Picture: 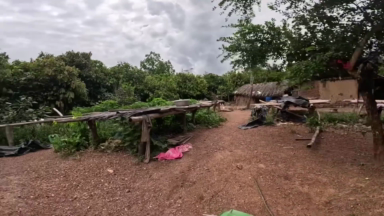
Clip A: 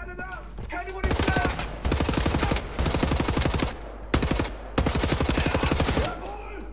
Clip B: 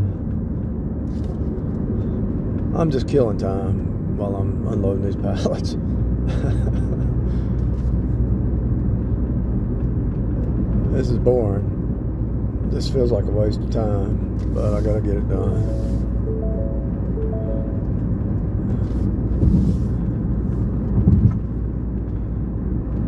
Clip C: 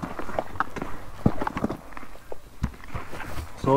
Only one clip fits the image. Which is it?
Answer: C